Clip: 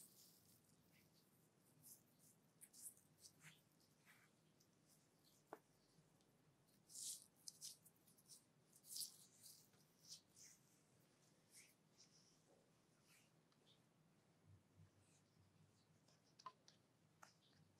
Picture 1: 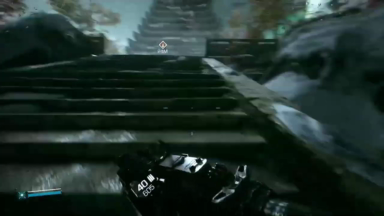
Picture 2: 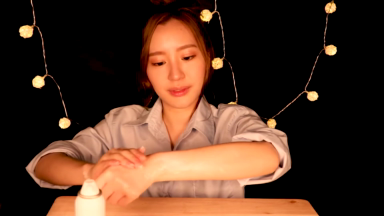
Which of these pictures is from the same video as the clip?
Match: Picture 2